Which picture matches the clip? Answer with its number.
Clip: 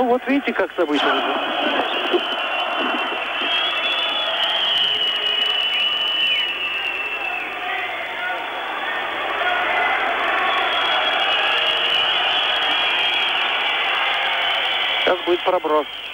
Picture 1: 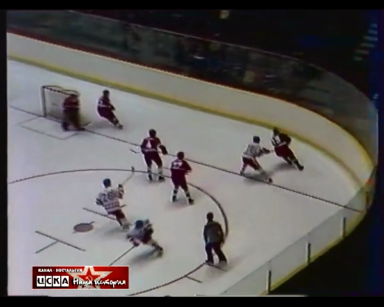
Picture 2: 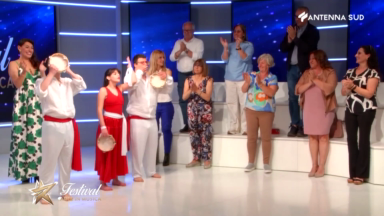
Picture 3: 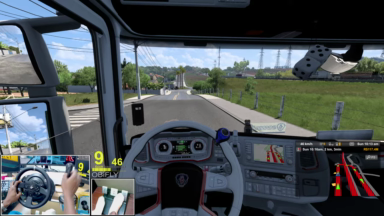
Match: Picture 1